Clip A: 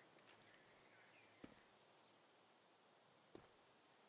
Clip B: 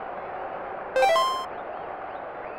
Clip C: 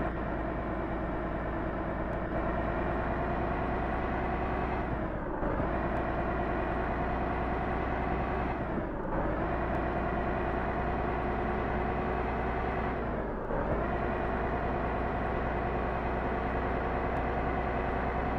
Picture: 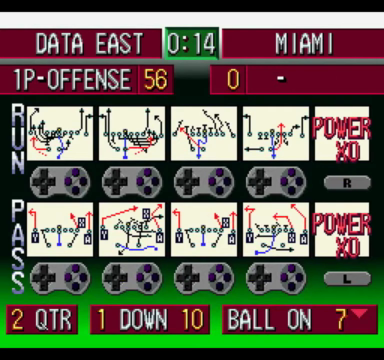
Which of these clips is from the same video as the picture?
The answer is B